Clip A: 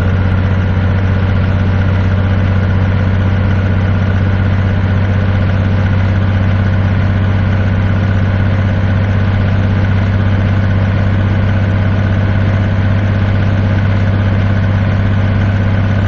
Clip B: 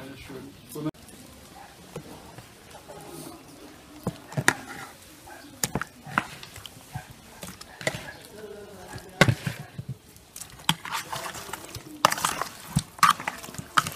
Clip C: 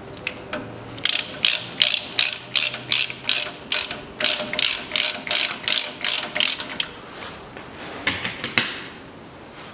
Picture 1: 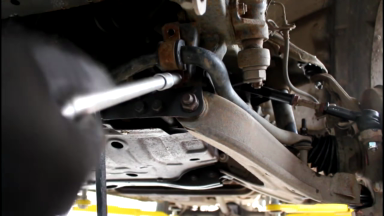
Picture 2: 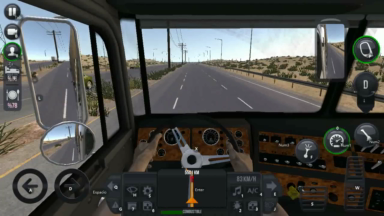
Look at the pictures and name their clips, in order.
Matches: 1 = C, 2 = A